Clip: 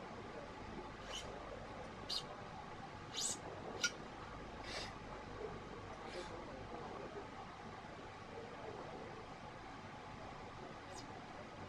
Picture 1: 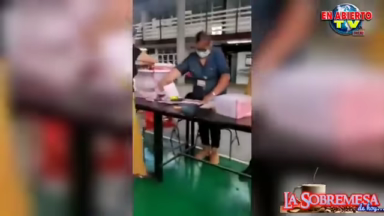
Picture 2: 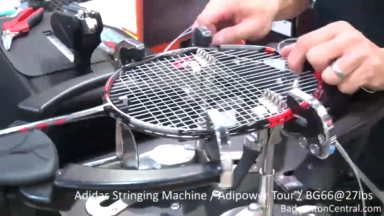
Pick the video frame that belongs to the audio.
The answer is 2